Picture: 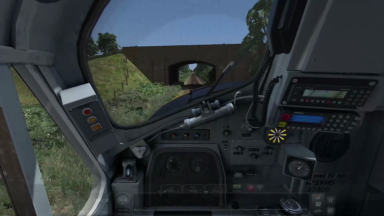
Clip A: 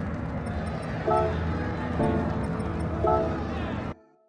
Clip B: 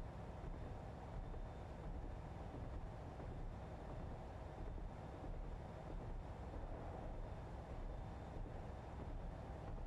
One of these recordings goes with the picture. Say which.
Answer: B